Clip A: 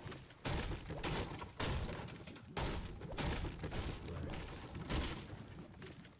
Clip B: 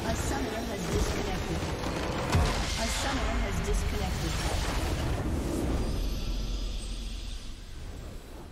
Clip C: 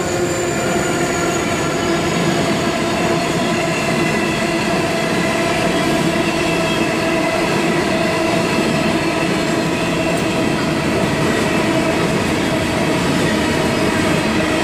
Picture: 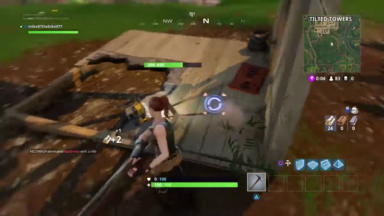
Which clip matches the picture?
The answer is A